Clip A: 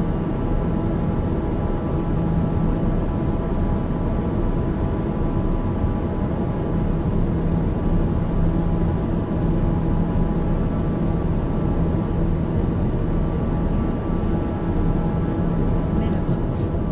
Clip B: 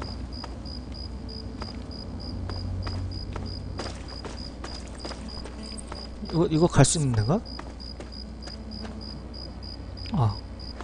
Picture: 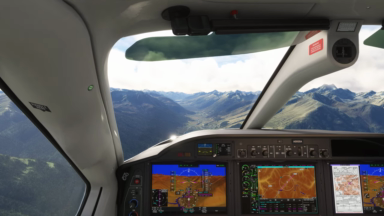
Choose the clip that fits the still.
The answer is A